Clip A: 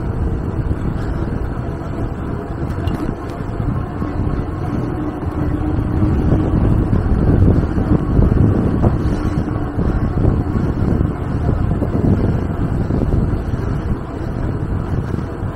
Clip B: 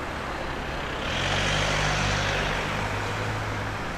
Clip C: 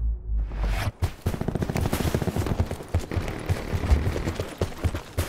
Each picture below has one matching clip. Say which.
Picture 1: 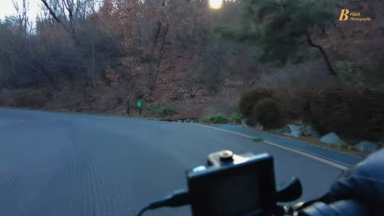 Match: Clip A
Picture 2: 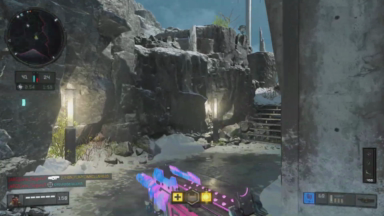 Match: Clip C